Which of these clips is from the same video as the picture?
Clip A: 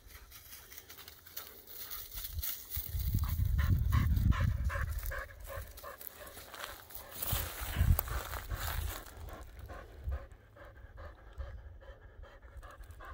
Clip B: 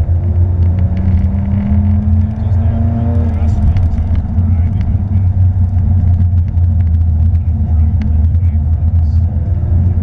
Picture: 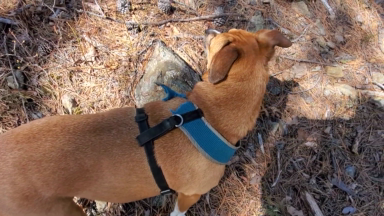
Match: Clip A